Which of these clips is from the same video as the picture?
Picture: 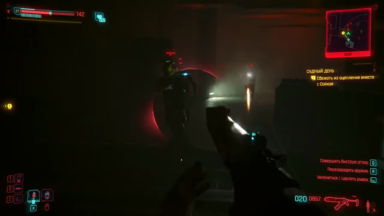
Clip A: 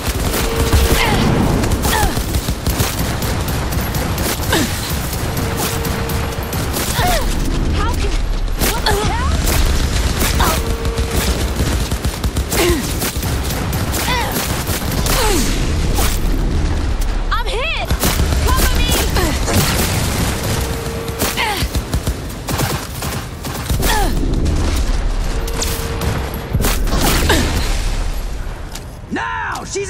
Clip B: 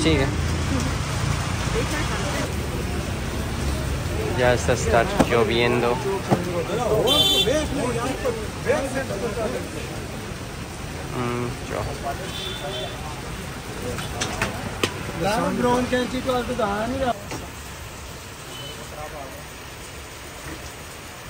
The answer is A